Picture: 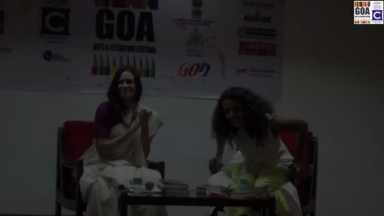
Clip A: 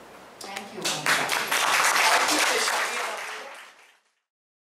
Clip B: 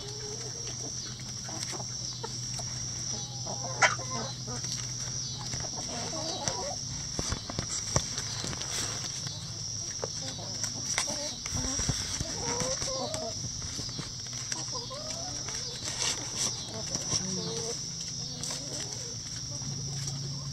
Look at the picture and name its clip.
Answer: A